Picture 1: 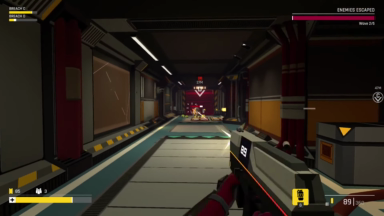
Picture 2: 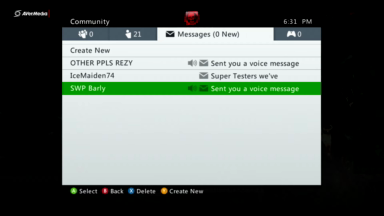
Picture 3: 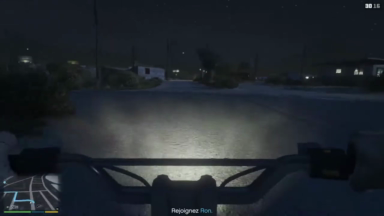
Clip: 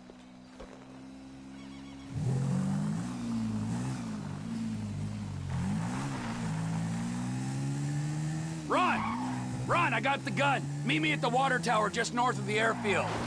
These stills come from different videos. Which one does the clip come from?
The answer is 3